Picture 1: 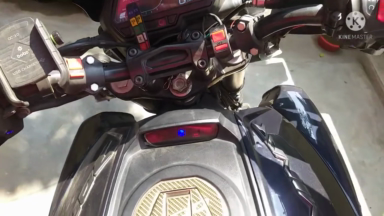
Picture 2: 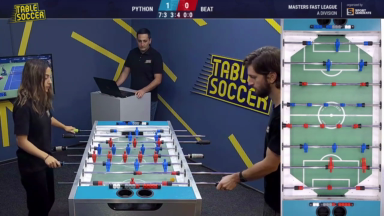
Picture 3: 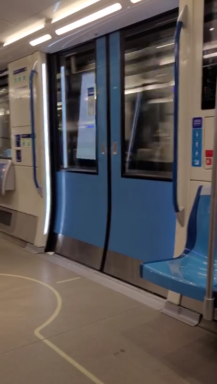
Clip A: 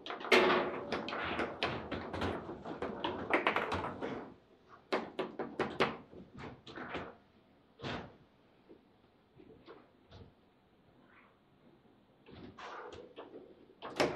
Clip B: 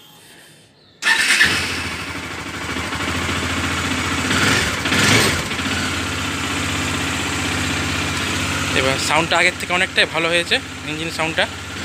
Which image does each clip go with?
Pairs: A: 2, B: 1